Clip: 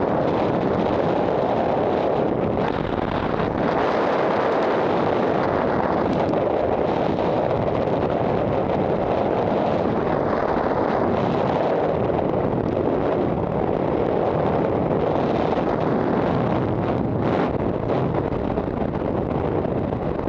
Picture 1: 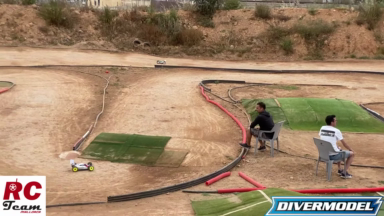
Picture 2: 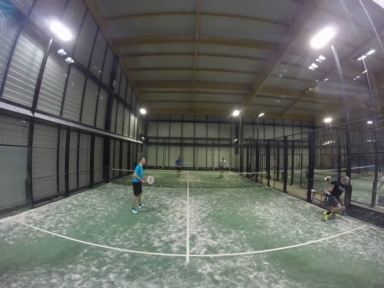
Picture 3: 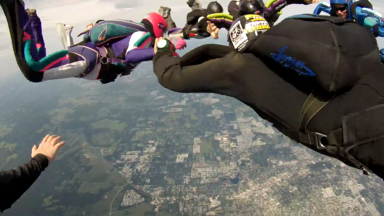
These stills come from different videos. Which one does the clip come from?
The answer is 3